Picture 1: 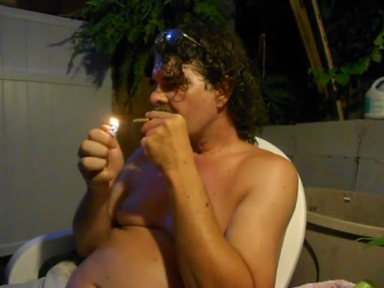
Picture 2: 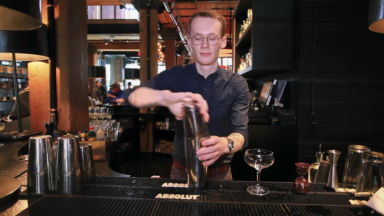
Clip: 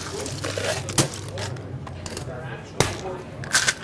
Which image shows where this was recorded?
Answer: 2